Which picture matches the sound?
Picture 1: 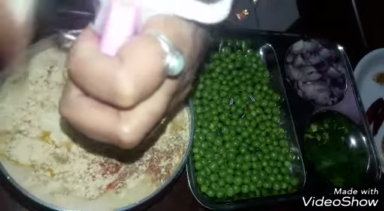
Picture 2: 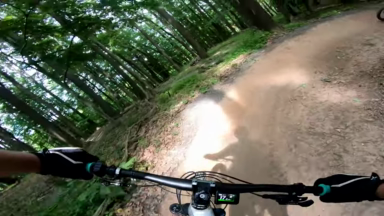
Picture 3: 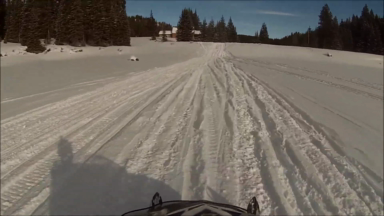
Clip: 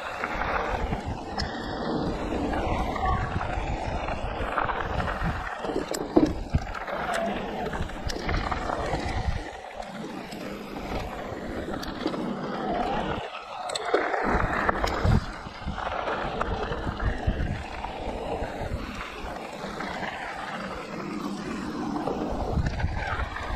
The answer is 2